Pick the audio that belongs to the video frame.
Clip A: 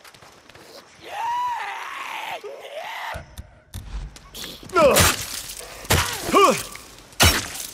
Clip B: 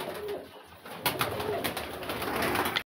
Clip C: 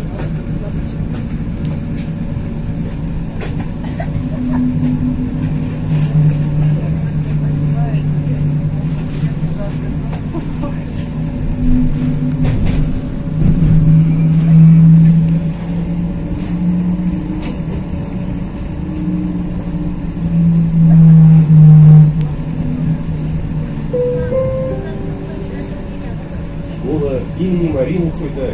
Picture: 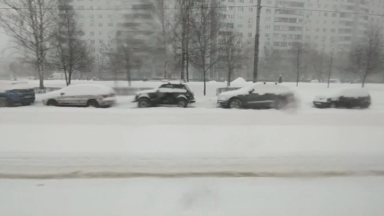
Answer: C